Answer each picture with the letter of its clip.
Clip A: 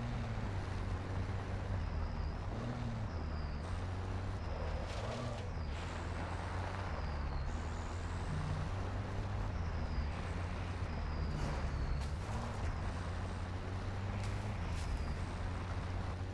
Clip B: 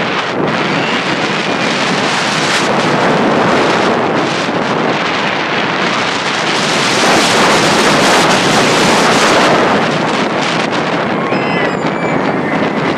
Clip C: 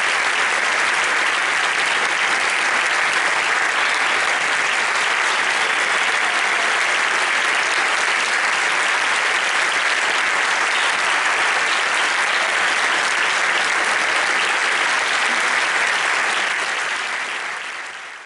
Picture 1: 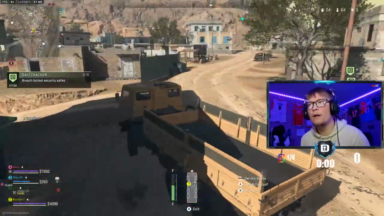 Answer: A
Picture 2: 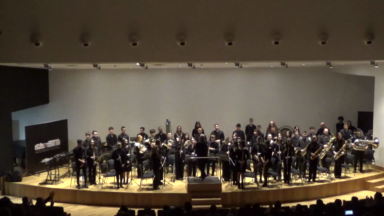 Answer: C